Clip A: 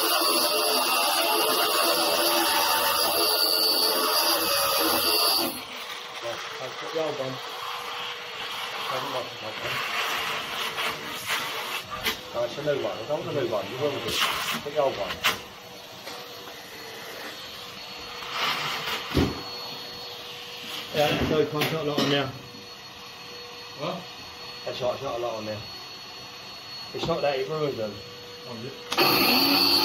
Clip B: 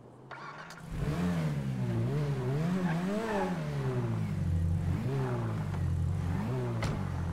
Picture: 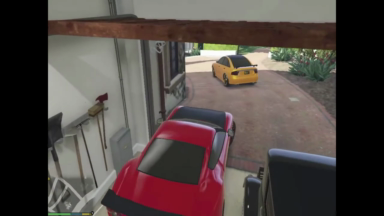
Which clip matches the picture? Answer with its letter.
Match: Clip B